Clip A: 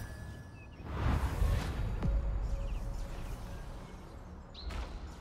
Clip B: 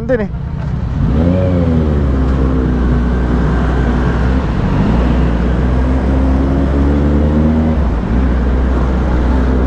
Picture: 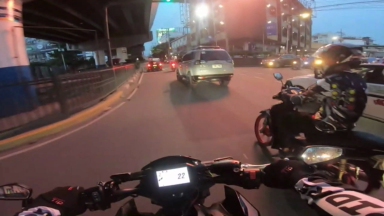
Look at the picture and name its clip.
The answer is B